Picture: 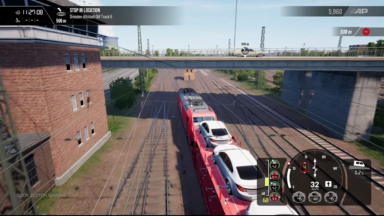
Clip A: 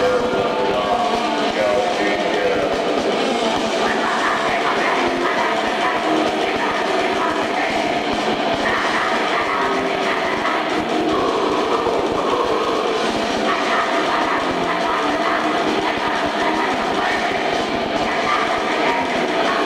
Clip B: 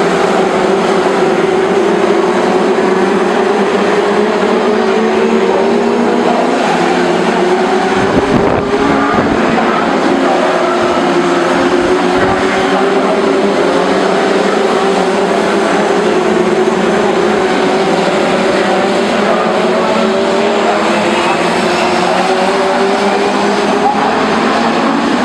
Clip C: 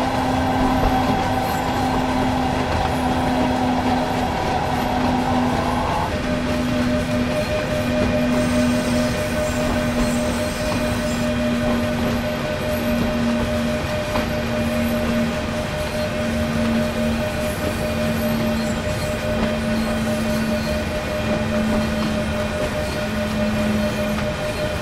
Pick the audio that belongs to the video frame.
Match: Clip C